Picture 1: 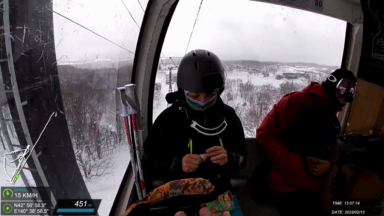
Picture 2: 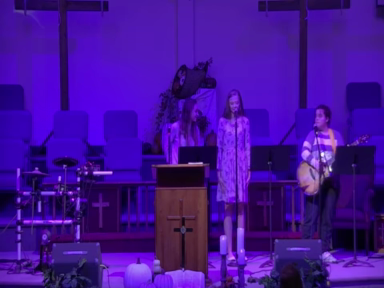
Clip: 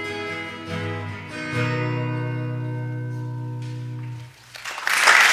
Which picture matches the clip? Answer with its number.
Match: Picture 2